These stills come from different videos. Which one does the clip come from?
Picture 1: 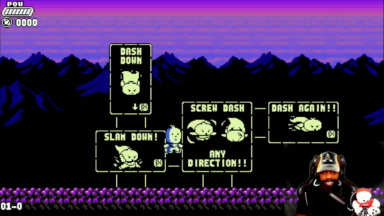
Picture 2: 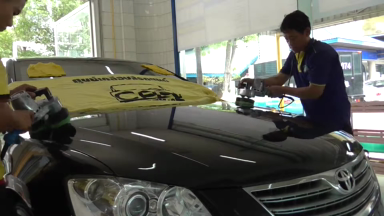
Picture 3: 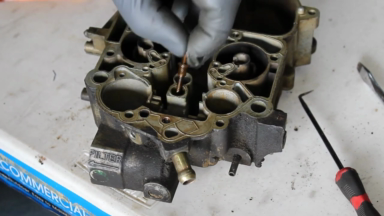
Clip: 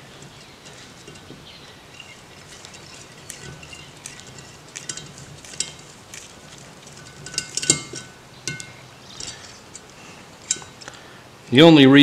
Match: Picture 3